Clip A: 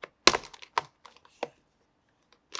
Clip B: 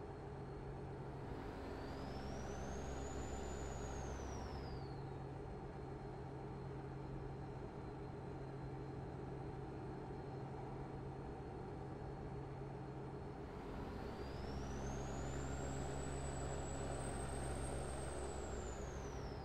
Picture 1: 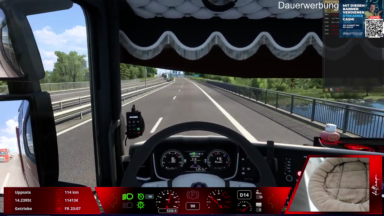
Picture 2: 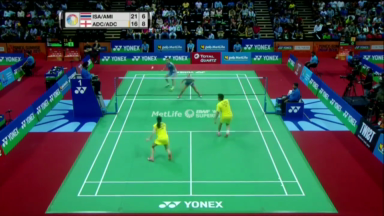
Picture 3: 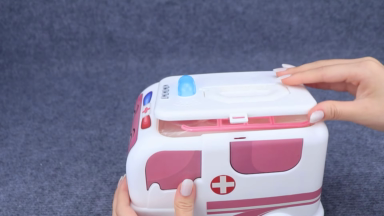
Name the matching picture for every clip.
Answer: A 3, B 1